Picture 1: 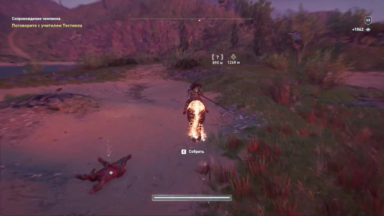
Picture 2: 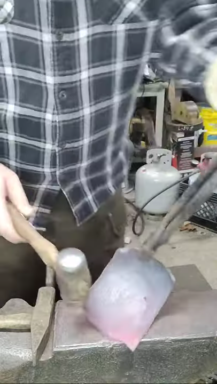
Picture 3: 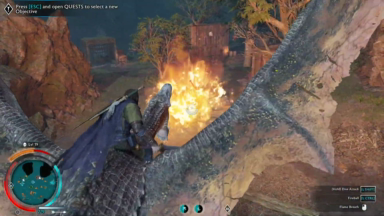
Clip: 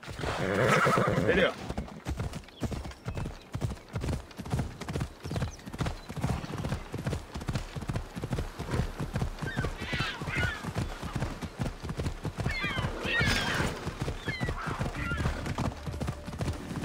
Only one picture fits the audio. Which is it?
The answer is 1